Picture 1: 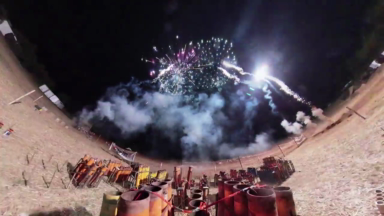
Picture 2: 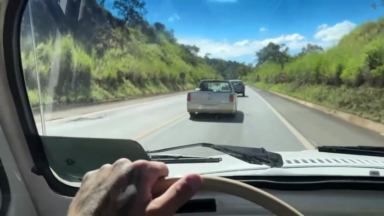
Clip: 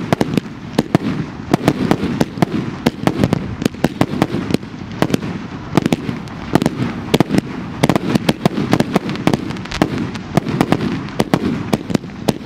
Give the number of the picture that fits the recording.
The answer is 1